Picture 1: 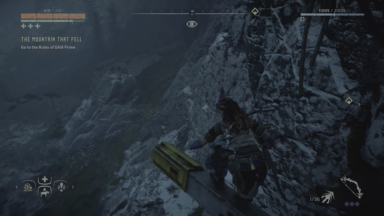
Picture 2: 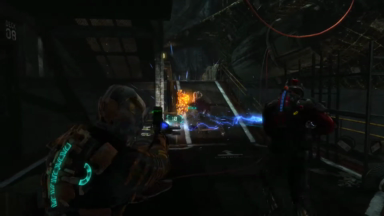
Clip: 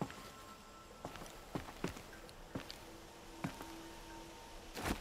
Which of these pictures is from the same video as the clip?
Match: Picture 1